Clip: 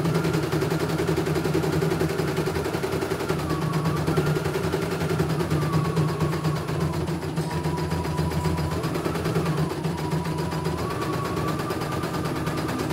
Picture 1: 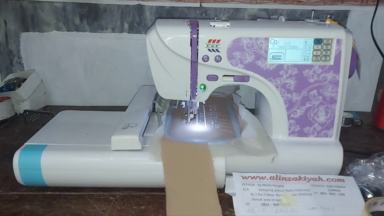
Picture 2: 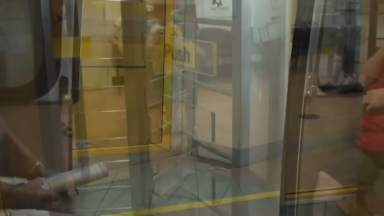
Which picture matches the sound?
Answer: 1